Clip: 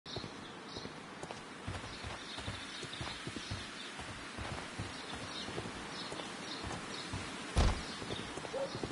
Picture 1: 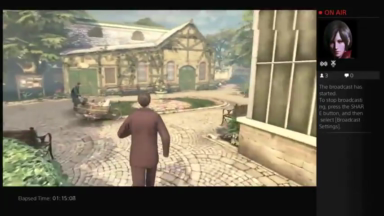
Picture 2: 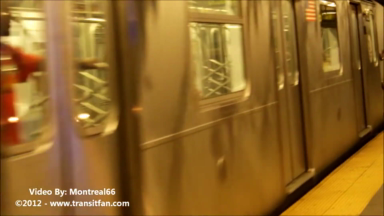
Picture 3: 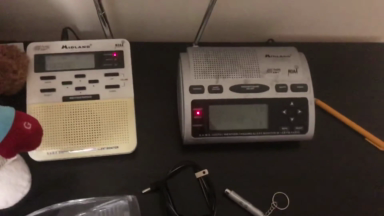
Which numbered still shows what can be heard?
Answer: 1